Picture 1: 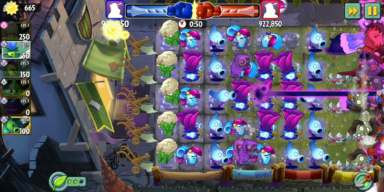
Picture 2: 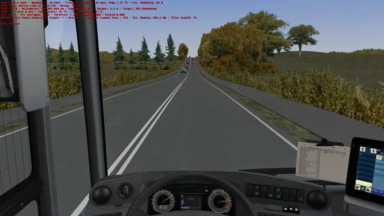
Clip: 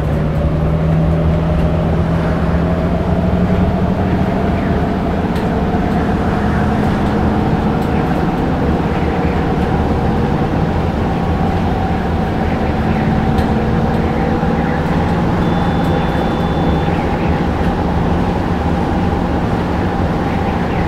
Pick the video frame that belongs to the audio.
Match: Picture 2